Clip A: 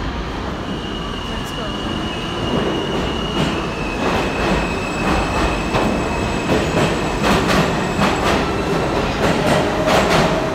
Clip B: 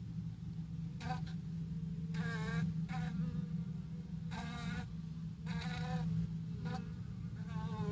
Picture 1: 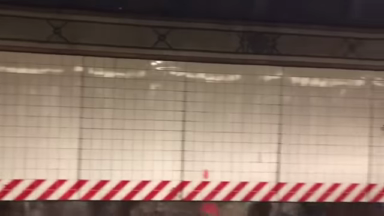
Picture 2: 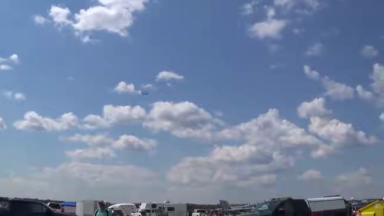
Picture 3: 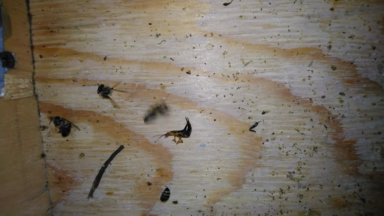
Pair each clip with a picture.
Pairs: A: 1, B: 3